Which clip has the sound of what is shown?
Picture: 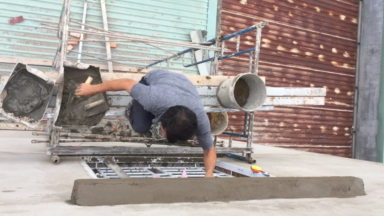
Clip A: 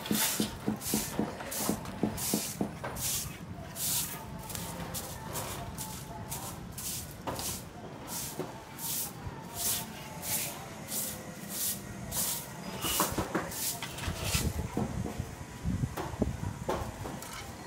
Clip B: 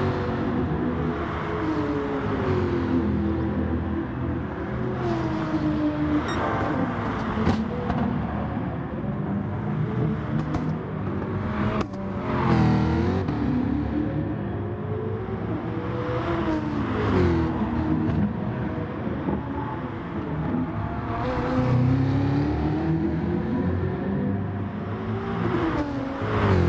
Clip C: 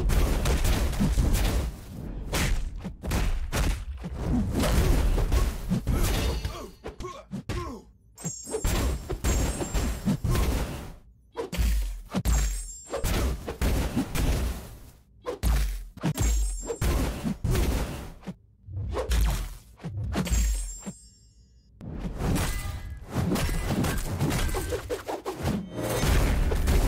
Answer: A